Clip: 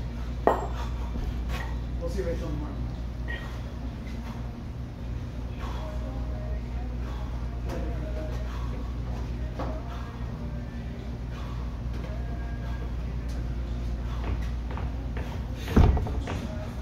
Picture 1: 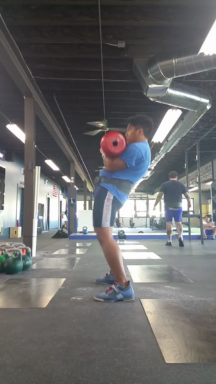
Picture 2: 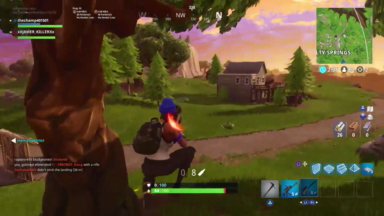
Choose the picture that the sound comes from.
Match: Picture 1